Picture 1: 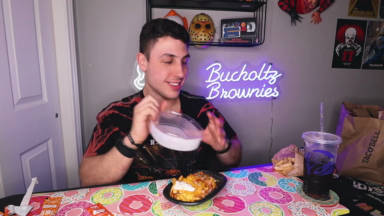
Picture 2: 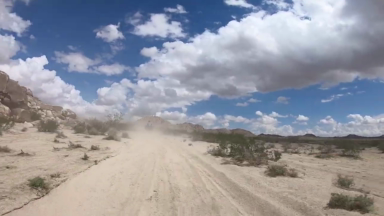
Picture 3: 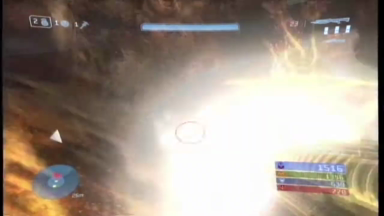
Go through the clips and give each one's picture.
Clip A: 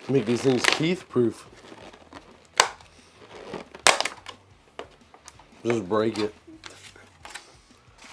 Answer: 1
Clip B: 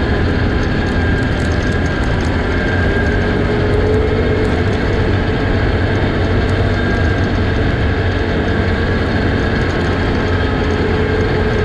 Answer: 2